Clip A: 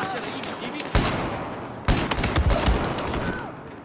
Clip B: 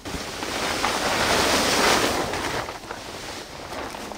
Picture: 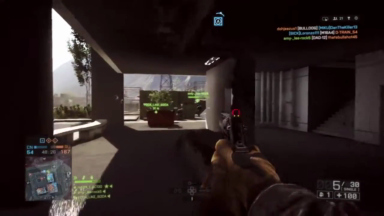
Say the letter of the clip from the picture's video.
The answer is A